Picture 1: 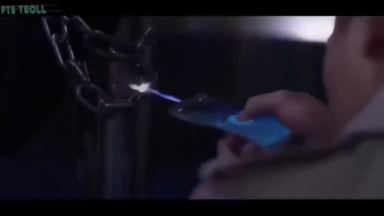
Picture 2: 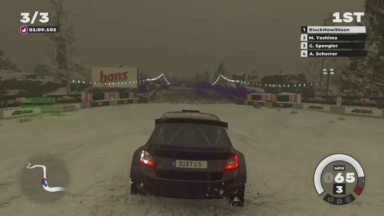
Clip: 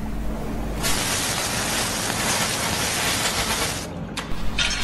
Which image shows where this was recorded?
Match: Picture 1